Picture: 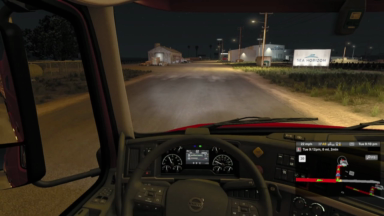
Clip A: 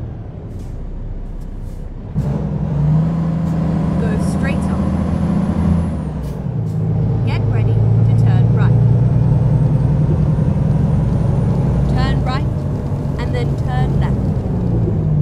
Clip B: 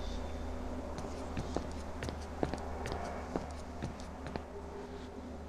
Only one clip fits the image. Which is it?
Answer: A